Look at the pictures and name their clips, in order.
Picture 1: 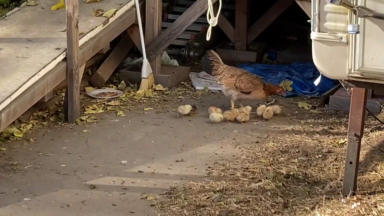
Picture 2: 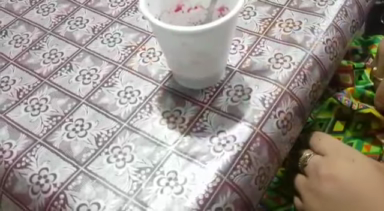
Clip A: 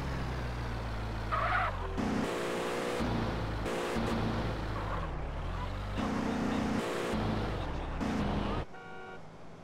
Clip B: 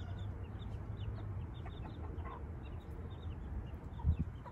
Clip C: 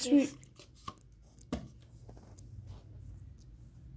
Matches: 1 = B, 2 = C